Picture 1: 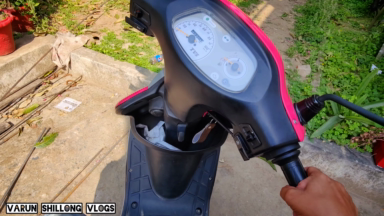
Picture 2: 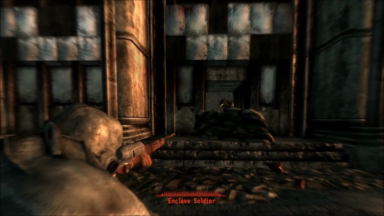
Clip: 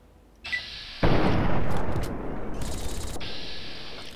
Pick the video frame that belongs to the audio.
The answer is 2